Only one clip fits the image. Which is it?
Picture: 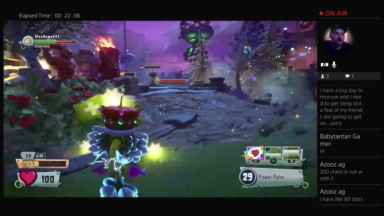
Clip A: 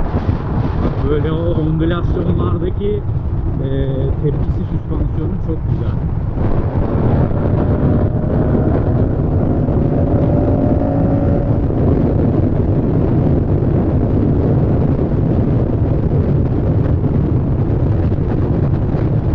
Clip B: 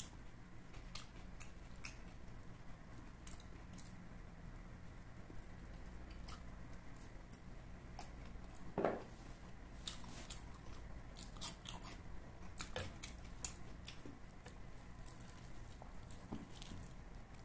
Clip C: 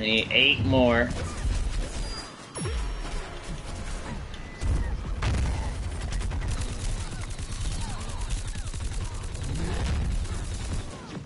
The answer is C